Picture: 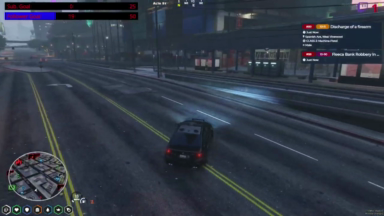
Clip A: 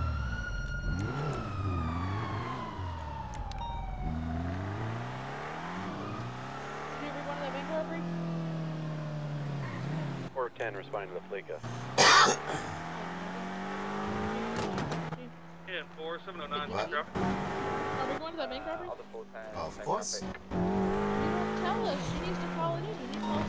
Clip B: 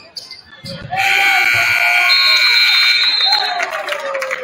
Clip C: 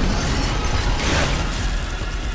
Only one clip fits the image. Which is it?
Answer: A